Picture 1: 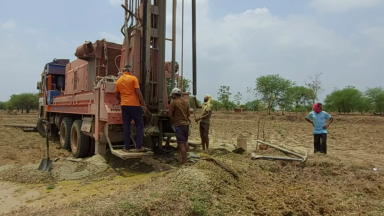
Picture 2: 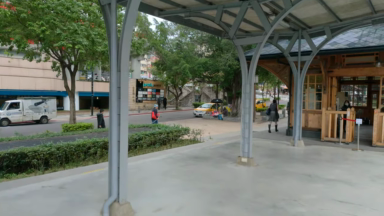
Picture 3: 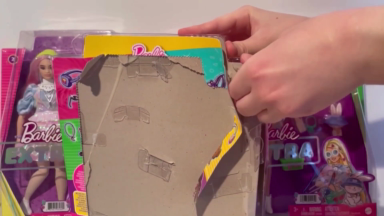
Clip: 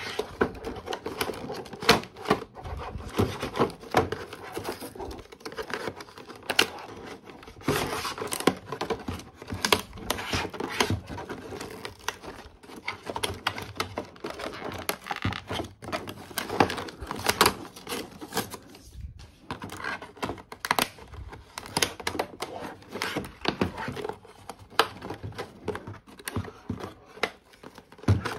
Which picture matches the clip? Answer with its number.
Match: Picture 3